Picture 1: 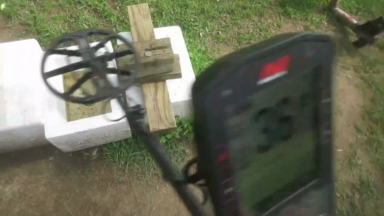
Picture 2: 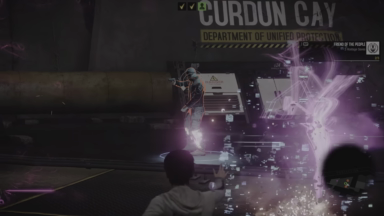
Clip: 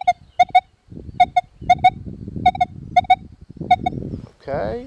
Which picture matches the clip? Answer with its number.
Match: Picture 1